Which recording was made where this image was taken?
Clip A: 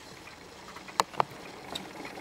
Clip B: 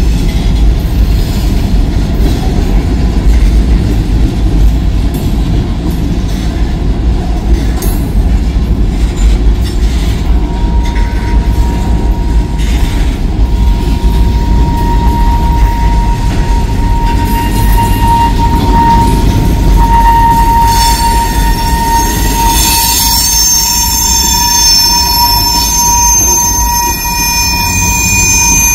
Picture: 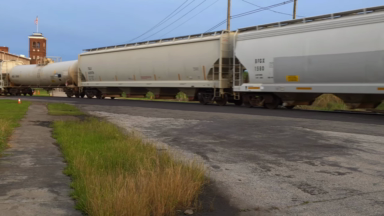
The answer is B